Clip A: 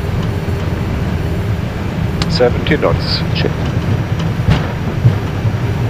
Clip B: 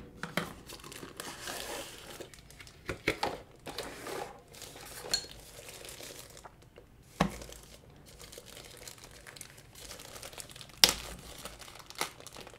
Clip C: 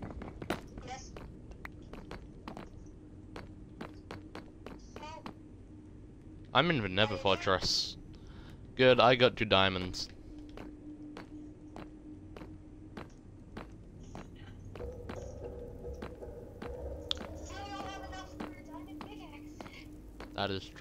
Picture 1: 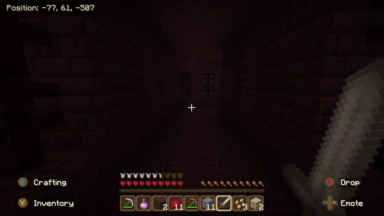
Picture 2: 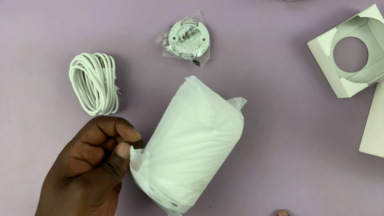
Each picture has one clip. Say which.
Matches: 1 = C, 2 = B